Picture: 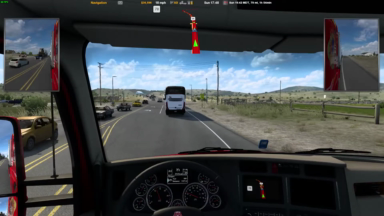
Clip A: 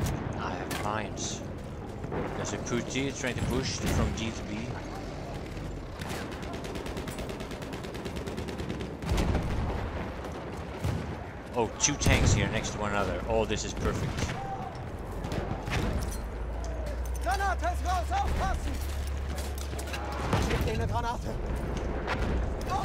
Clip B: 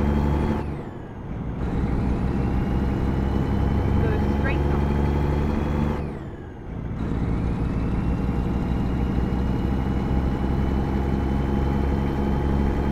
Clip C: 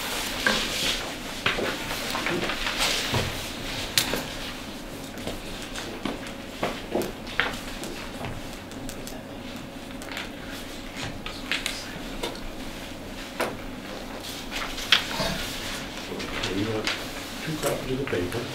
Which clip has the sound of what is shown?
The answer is B